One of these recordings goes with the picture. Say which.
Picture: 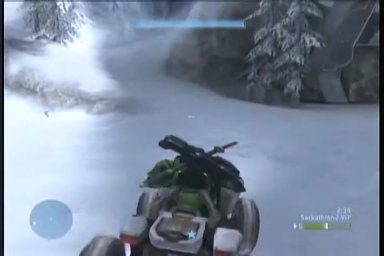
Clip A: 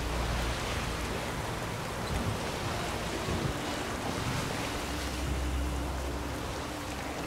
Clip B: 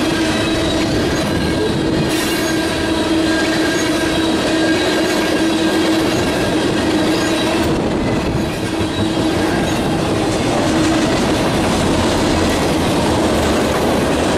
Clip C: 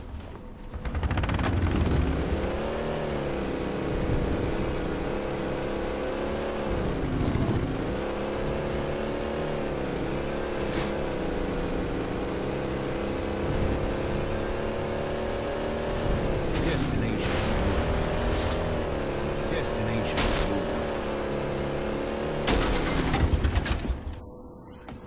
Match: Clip C